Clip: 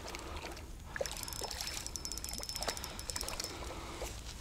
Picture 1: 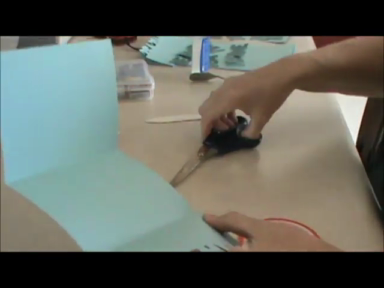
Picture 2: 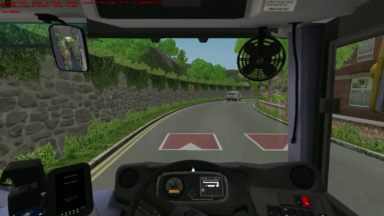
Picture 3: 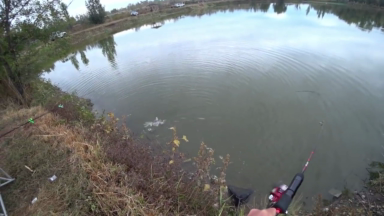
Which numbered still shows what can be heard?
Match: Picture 3